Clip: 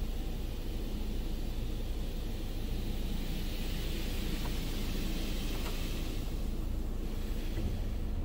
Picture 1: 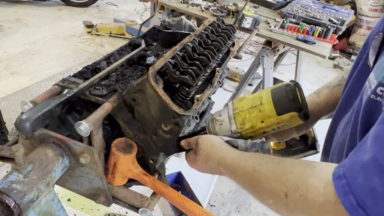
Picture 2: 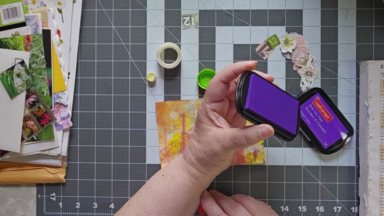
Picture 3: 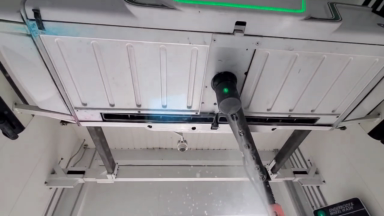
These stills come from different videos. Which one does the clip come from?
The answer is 3